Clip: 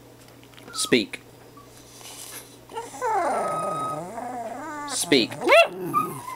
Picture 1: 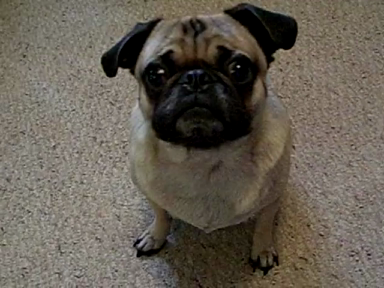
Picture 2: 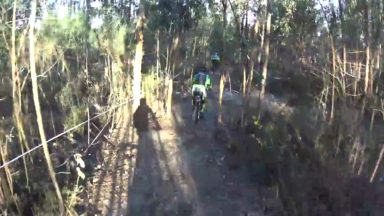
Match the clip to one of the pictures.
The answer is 1